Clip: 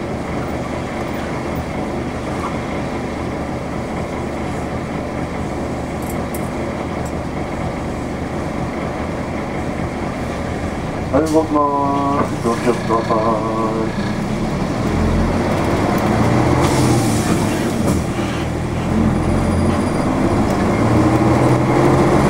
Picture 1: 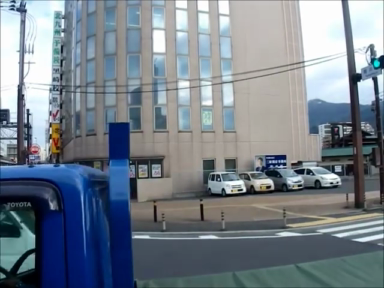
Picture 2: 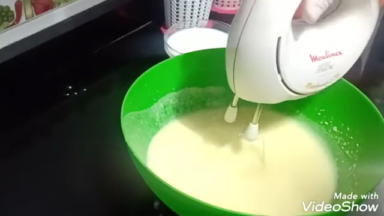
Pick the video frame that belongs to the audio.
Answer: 1